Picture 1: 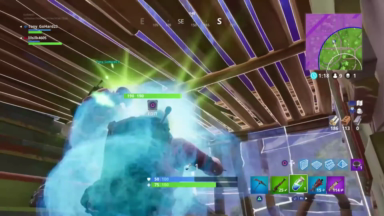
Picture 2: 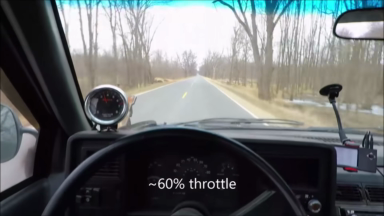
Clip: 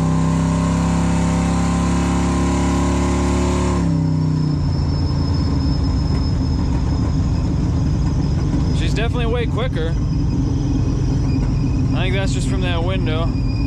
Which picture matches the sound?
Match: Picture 2